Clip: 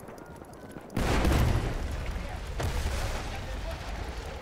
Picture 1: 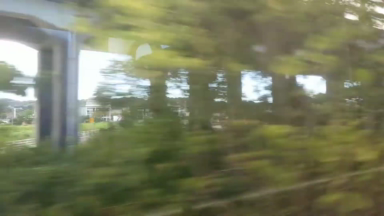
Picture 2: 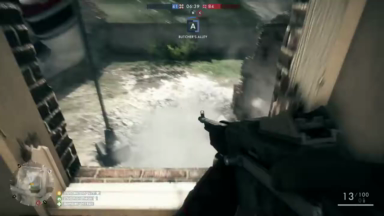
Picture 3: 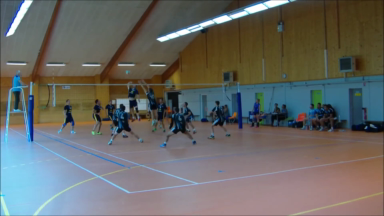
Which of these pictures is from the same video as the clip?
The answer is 2